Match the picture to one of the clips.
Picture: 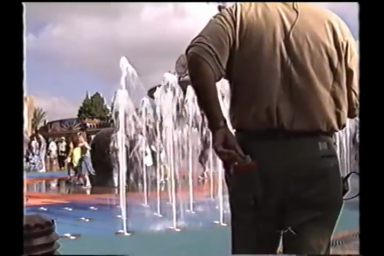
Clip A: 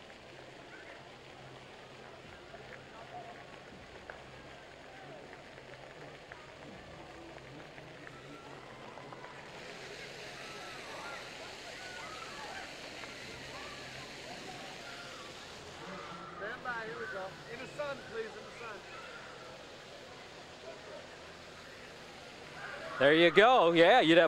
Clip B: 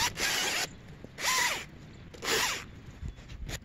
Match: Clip A